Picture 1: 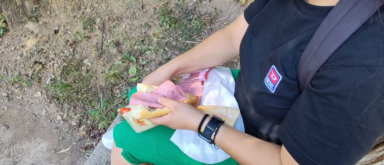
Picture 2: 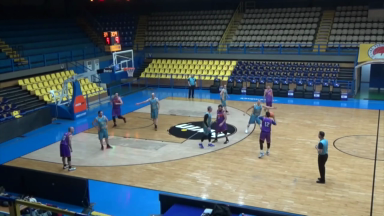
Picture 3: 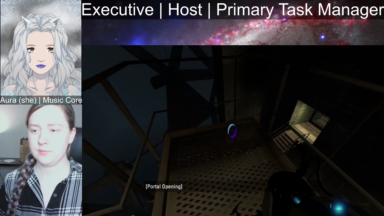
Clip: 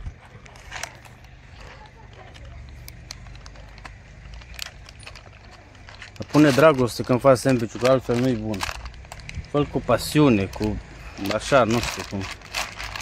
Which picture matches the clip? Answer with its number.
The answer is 1